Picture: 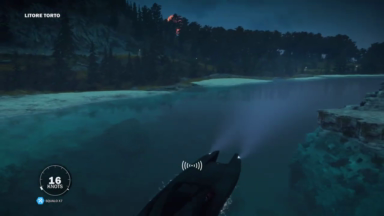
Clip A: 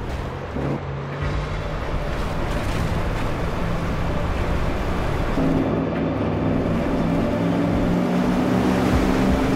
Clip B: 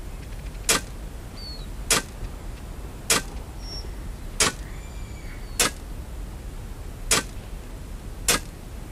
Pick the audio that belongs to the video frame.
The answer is A